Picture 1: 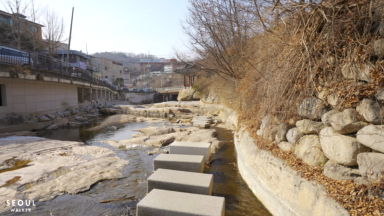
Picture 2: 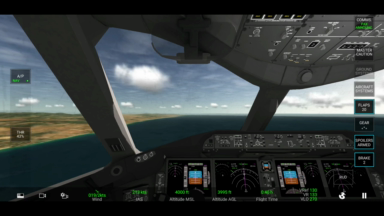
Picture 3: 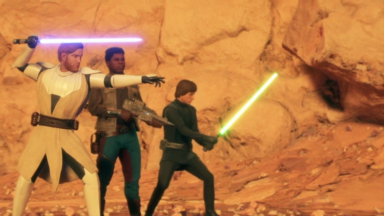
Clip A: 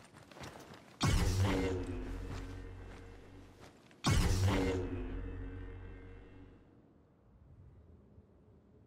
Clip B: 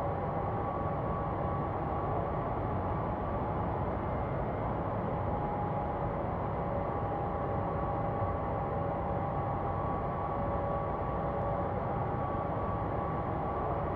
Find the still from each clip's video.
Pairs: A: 3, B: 2